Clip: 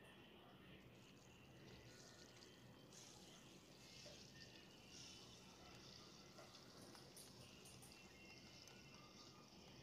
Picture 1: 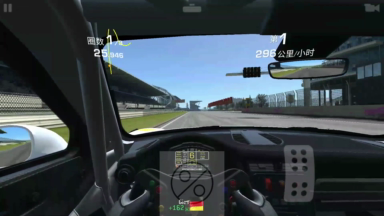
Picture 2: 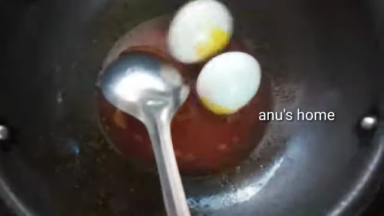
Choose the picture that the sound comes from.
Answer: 2